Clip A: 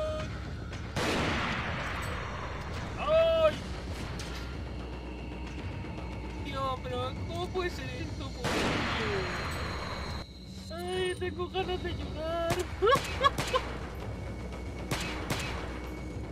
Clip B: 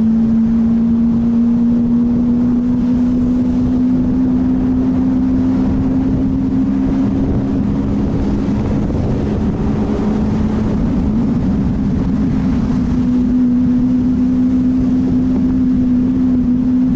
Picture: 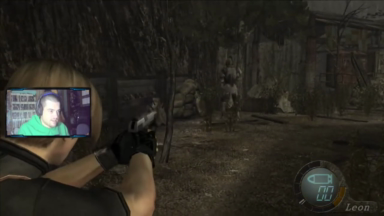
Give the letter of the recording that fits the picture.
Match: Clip A